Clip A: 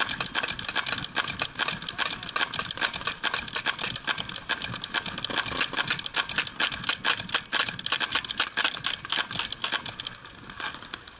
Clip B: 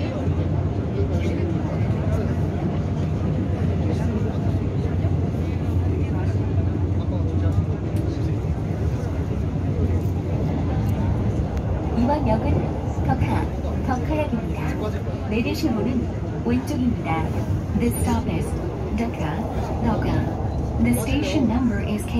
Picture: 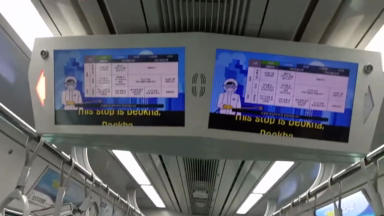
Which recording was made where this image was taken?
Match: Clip B